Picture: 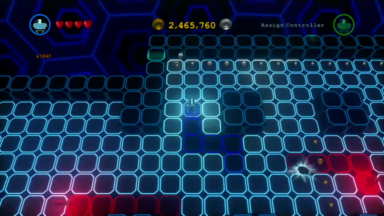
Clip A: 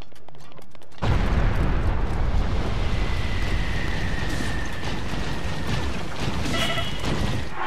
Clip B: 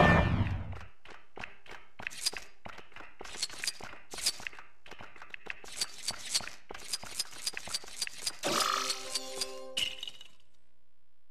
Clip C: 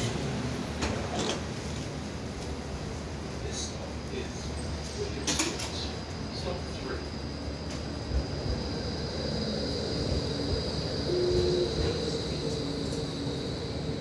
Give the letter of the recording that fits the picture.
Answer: B